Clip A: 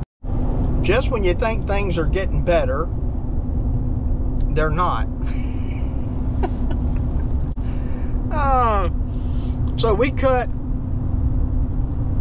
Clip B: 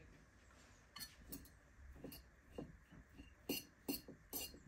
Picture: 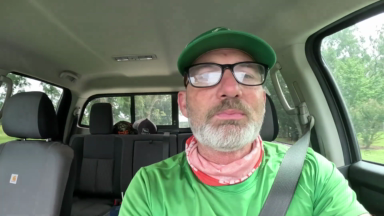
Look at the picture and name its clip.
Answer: A